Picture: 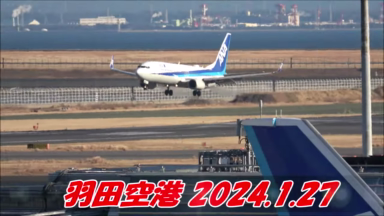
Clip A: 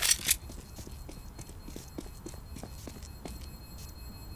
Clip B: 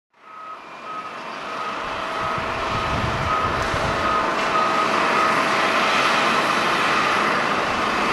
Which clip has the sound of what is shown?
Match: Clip B